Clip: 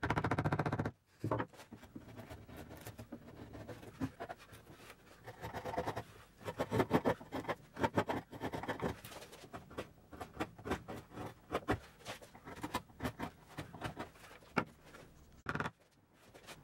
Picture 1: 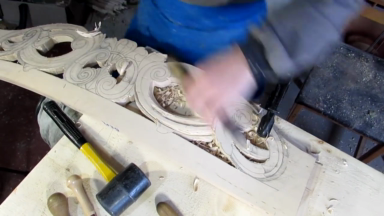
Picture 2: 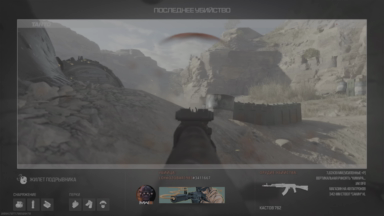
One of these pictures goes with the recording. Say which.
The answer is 1